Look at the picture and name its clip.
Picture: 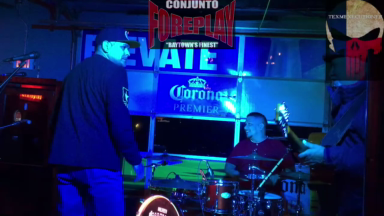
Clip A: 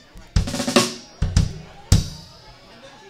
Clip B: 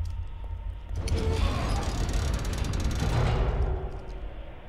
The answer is A